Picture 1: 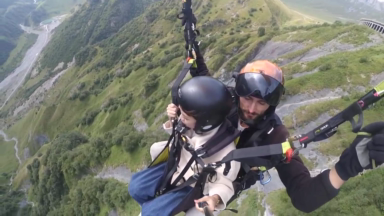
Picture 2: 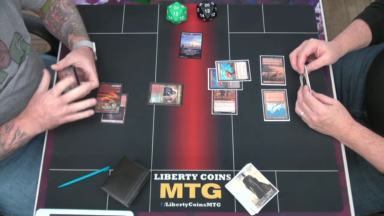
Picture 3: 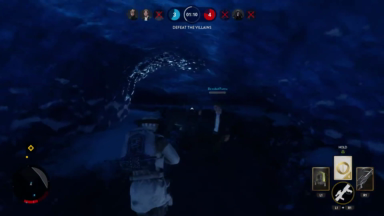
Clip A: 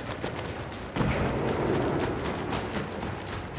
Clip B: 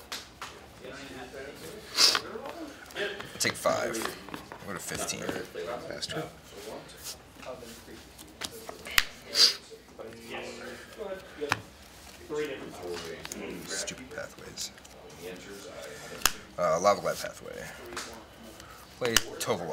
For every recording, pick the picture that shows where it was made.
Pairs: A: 3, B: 2